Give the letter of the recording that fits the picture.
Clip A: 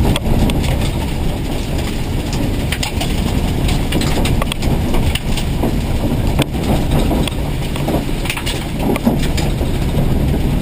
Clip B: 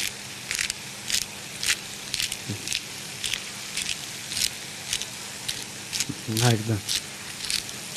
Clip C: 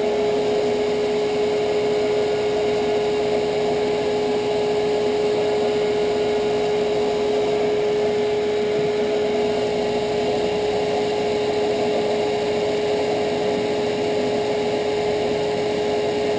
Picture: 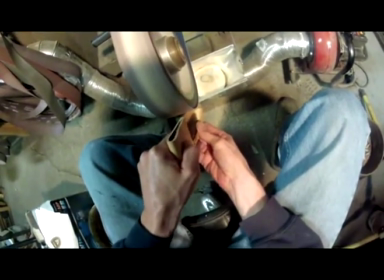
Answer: C